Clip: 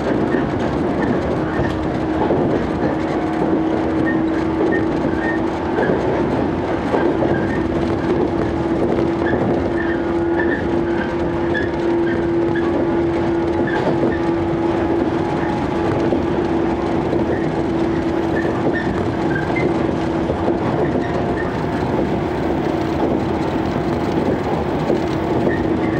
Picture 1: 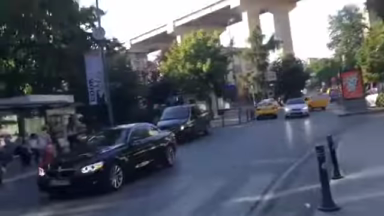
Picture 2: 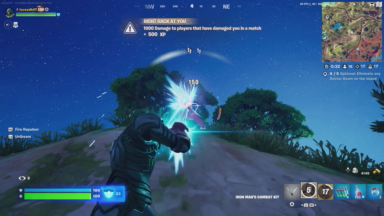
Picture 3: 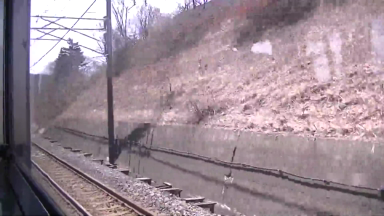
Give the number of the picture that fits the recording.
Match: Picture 3